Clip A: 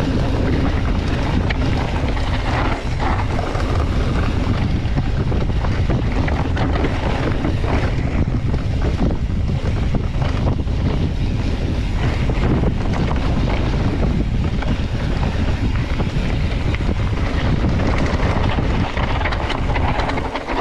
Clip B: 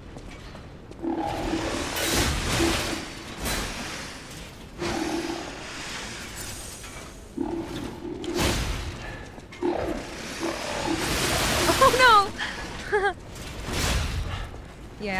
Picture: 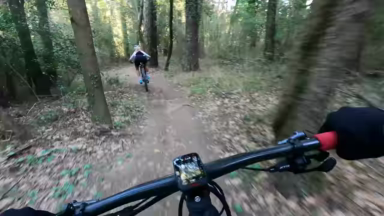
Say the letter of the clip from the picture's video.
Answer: A